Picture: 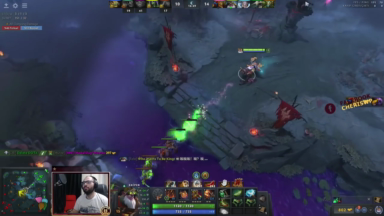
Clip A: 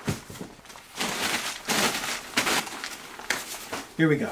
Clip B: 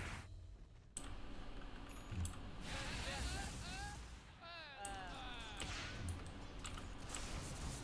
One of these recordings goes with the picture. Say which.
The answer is B